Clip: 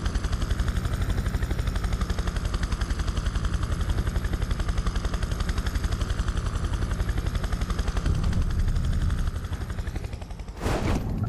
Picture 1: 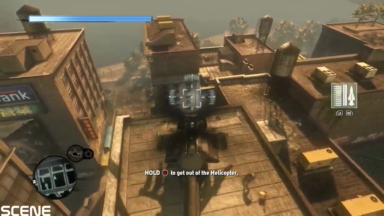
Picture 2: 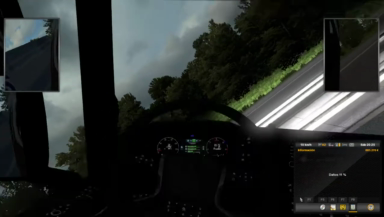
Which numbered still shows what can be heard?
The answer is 1